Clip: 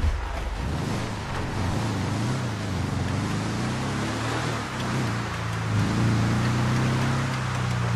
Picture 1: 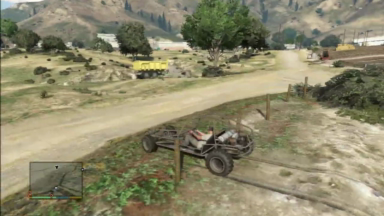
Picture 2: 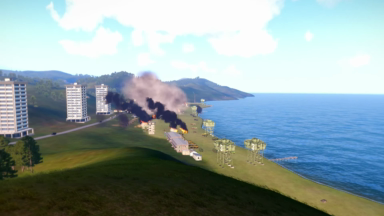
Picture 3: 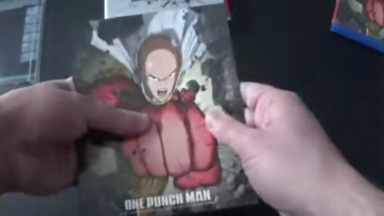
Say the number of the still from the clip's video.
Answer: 1